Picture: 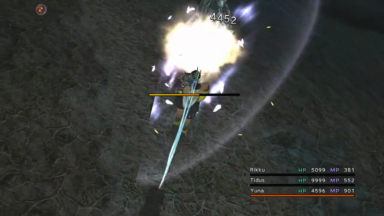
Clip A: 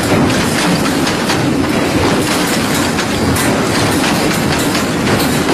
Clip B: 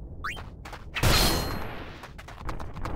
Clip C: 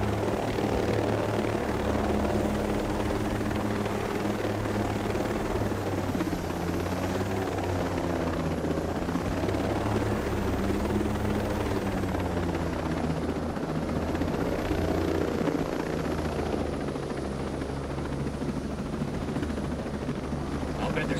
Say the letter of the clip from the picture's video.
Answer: B